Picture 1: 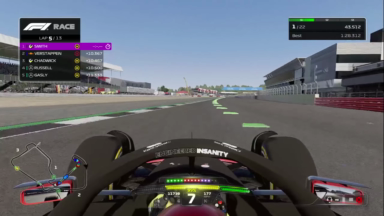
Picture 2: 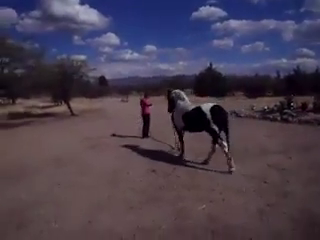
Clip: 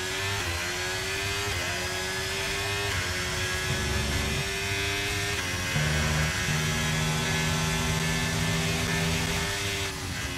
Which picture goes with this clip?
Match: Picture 1